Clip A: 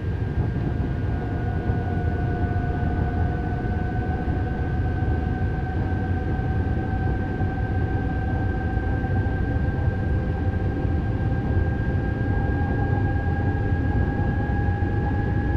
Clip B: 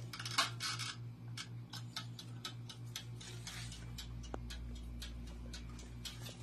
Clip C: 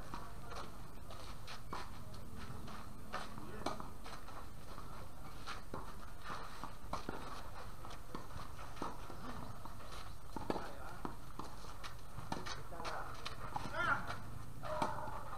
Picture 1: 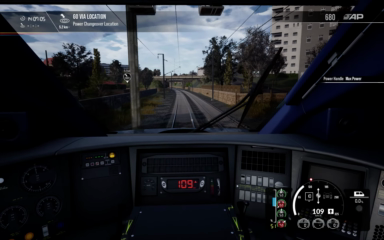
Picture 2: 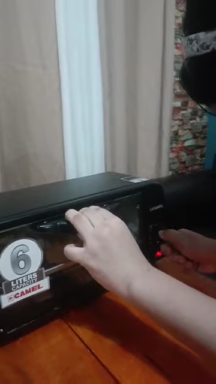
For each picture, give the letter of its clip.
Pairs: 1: A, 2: B